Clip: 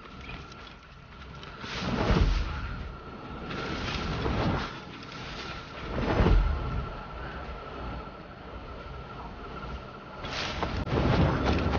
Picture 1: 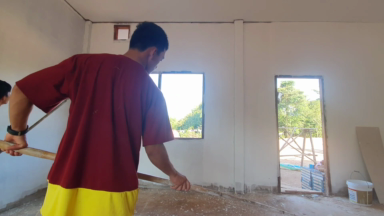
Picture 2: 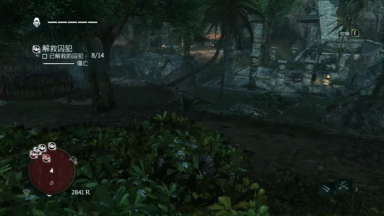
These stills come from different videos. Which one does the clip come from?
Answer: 2